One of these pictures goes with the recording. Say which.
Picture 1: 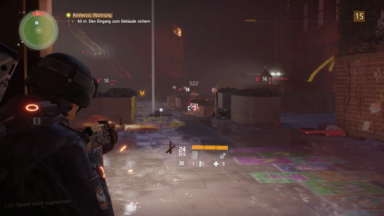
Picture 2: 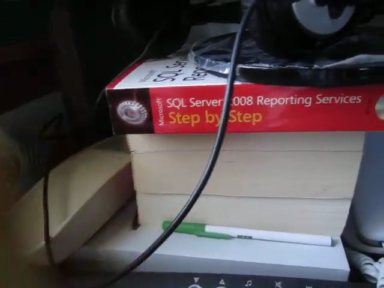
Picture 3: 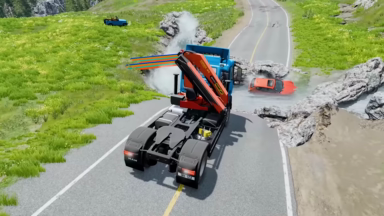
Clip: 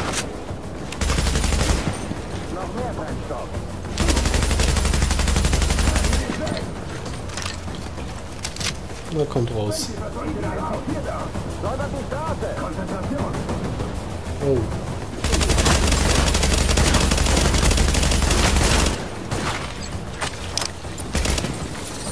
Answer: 1